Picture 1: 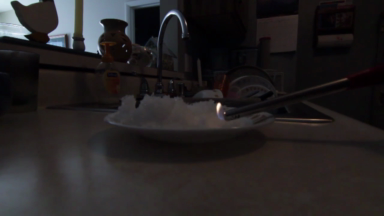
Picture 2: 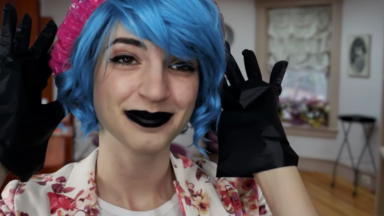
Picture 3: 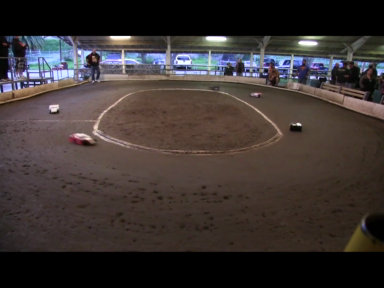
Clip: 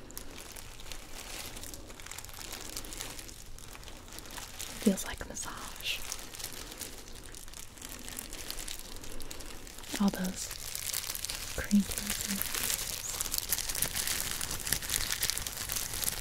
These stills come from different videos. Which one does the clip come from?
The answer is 2